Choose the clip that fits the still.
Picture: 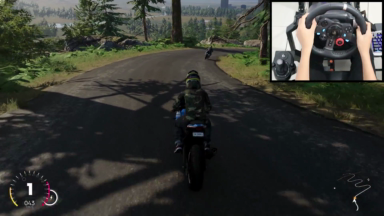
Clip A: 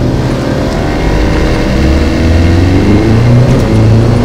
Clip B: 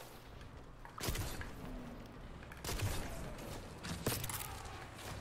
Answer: A